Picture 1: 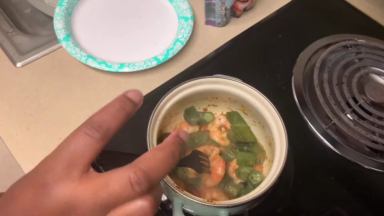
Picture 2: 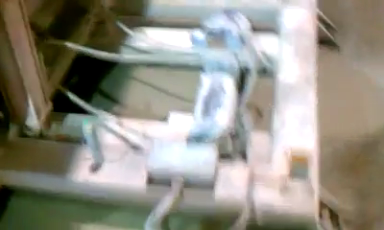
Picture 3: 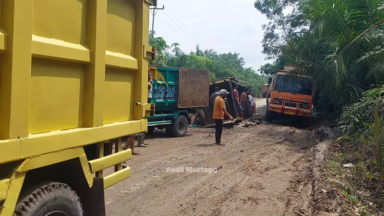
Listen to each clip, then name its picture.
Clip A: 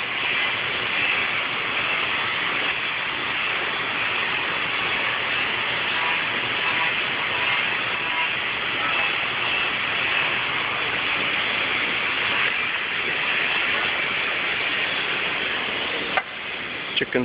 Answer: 2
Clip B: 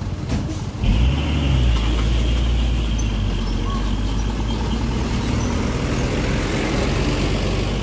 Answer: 3